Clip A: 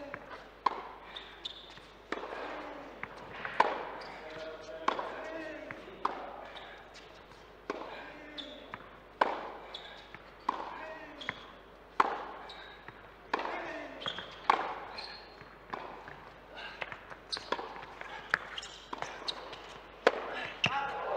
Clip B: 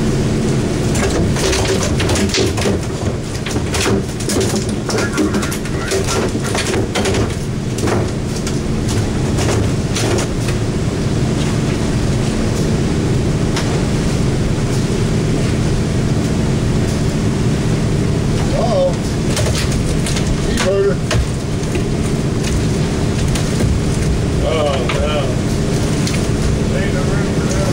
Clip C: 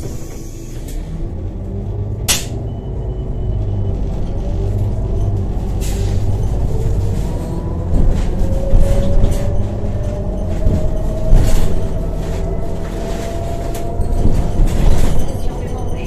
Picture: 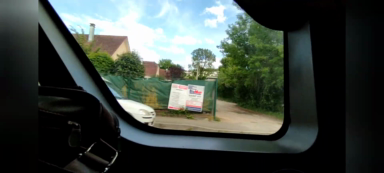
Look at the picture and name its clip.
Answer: C